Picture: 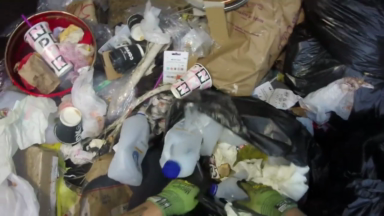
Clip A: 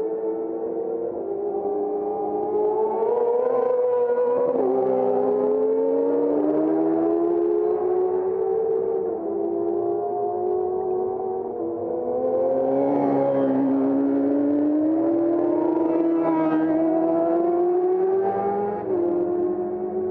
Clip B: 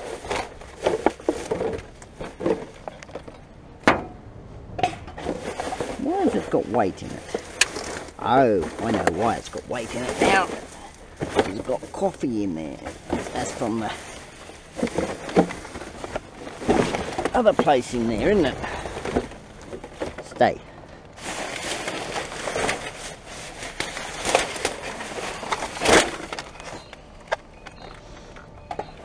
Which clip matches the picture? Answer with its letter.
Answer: B